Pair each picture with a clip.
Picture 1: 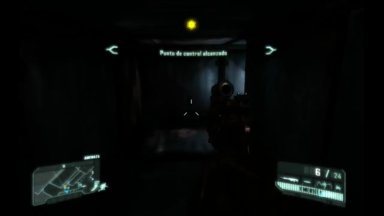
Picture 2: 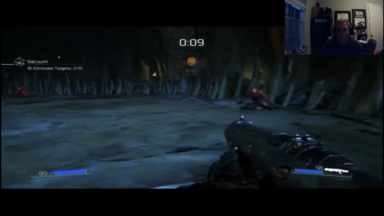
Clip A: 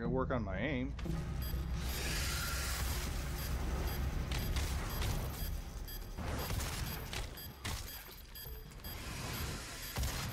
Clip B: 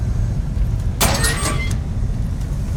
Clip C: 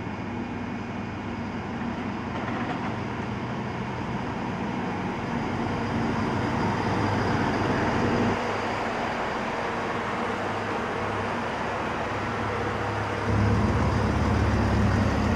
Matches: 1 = B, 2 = A